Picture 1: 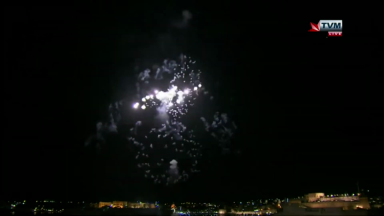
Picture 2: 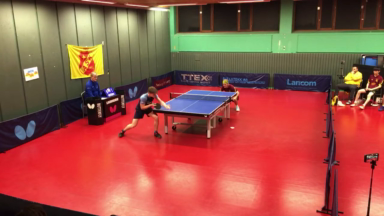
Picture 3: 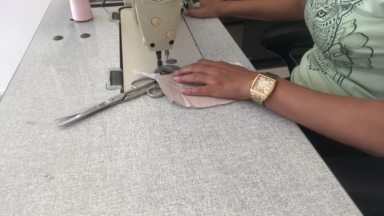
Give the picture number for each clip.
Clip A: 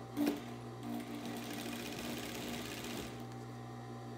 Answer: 3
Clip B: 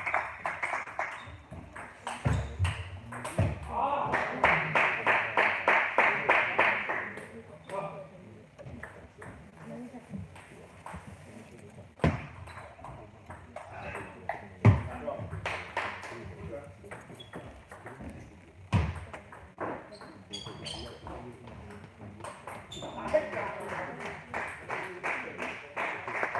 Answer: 2